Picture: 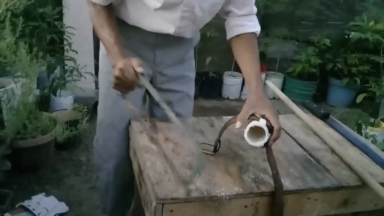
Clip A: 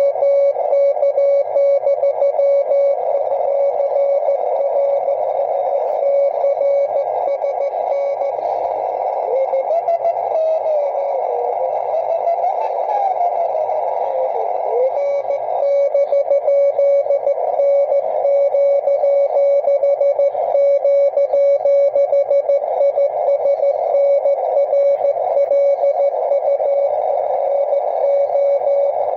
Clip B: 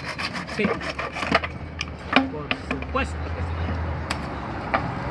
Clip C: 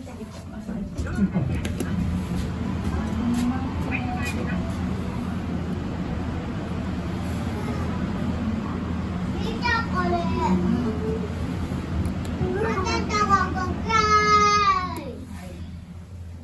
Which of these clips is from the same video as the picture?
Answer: B